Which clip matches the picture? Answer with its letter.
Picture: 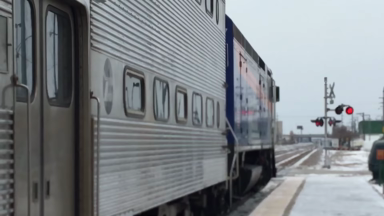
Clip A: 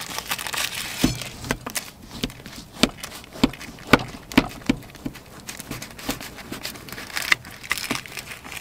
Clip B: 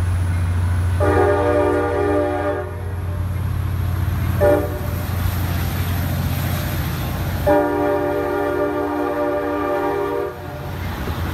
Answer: B